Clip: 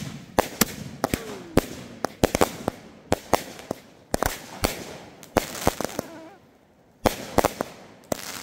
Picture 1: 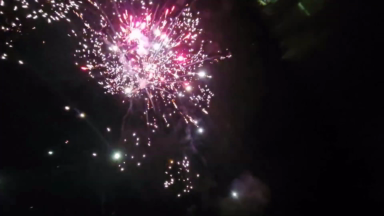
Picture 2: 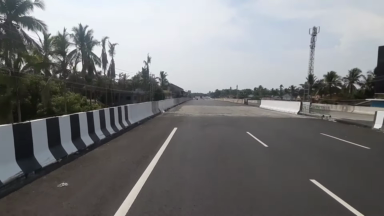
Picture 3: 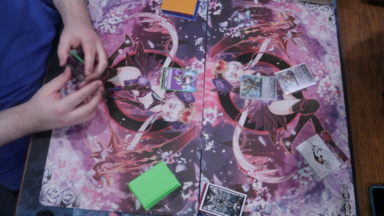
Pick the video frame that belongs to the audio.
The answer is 1